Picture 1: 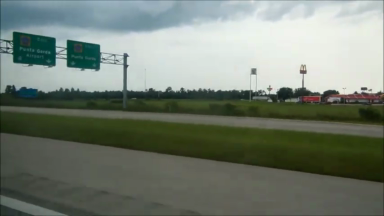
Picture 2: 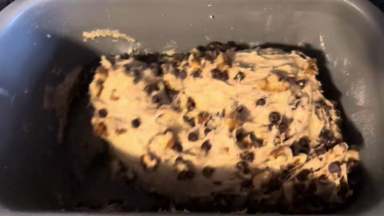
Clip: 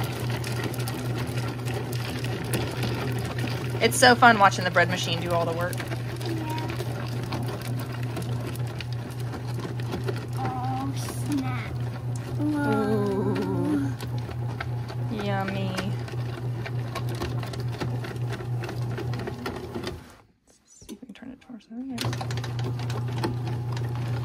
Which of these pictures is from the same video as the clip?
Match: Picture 2